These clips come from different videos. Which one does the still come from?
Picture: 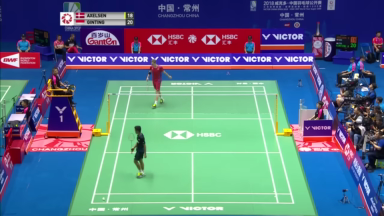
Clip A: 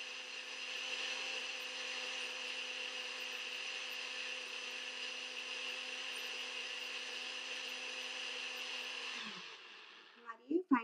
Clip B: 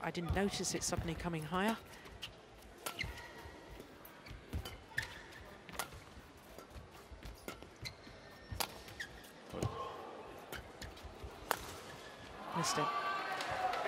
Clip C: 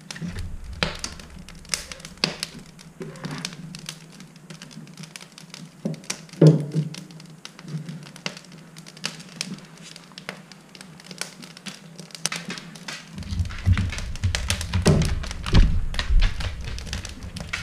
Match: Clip B